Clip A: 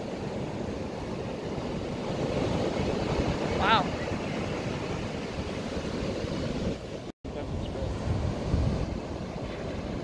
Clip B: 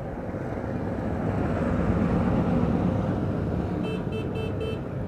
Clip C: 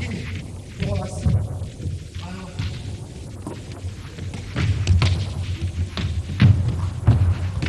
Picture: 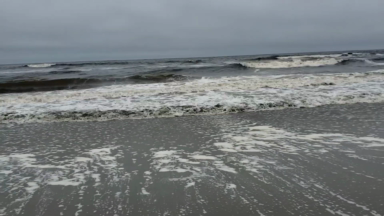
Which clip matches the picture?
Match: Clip A